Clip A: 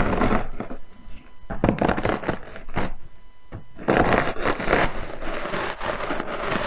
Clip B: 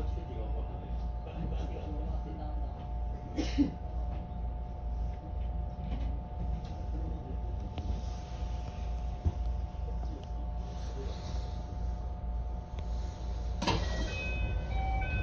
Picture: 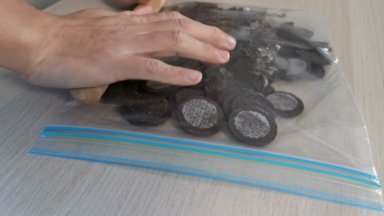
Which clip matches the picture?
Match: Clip A